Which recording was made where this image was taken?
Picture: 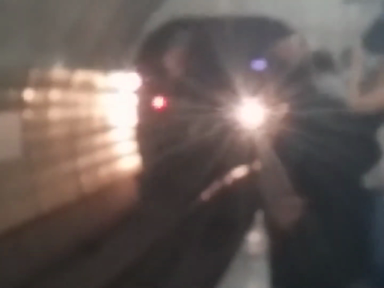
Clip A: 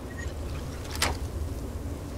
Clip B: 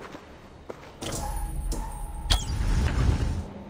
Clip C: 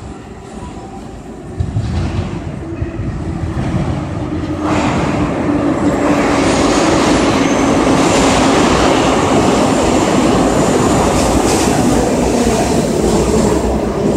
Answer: C